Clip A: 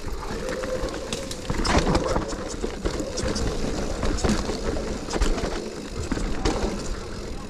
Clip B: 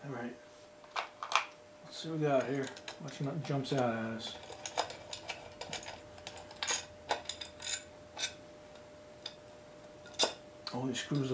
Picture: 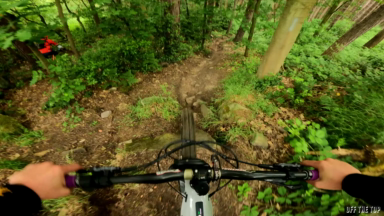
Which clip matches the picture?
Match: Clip A